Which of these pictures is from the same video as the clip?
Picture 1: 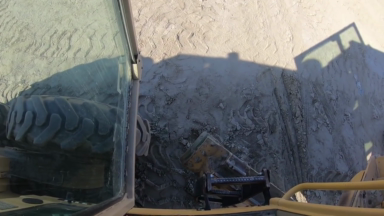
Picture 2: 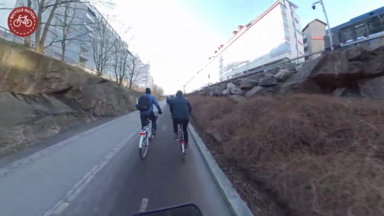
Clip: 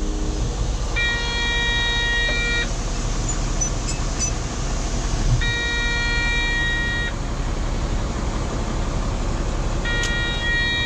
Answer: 1